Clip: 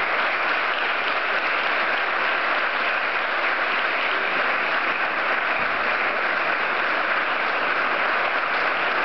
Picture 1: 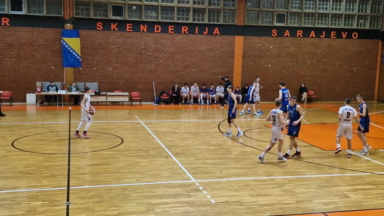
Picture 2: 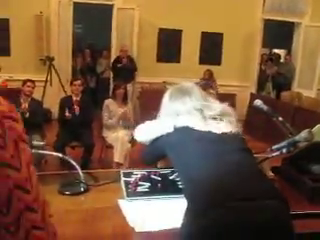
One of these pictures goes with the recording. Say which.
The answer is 2